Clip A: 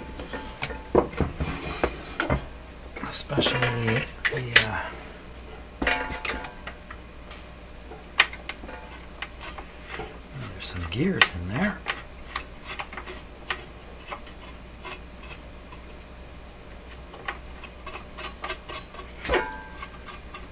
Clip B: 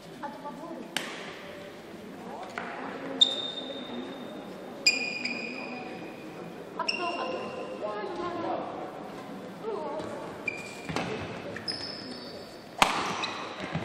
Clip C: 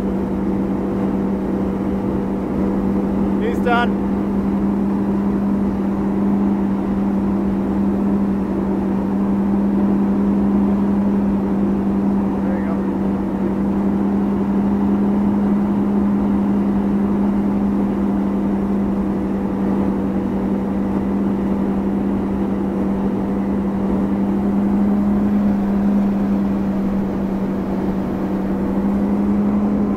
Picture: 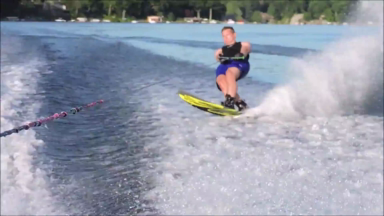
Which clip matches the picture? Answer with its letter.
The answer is C